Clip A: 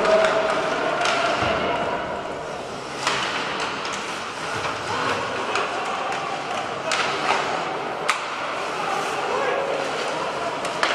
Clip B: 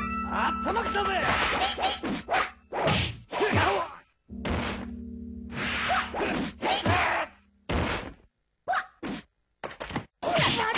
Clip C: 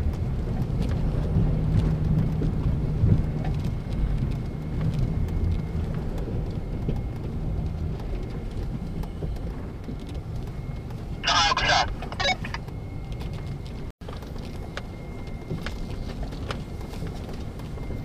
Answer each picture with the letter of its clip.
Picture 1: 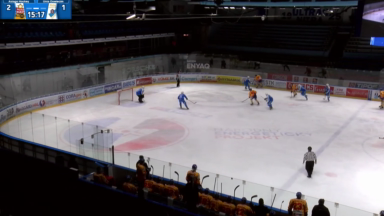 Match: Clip A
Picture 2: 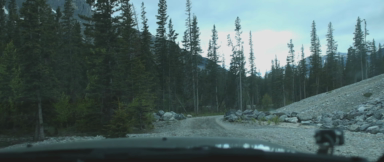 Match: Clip C